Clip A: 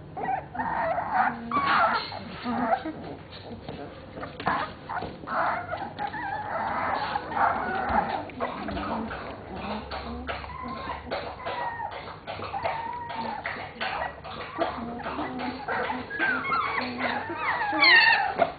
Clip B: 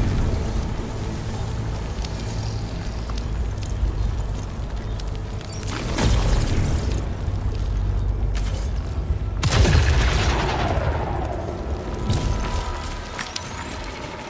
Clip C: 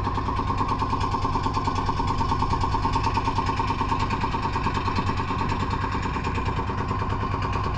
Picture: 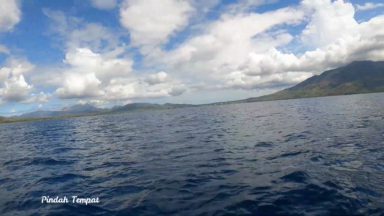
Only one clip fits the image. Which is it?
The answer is C